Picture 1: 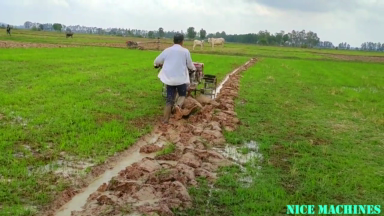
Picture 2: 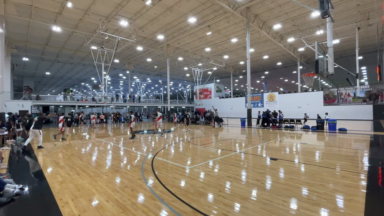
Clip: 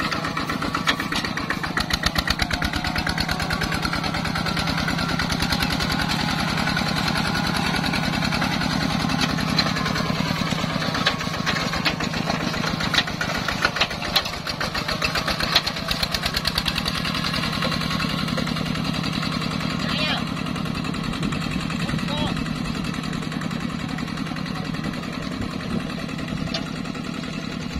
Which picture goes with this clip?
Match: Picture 1